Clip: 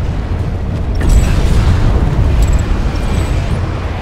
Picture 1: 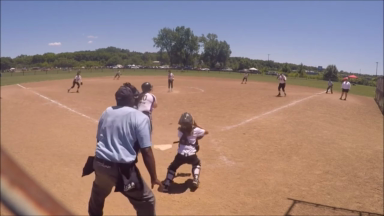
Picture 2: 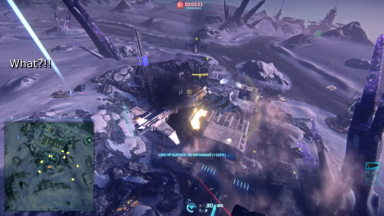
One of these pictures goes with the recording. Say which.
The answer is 2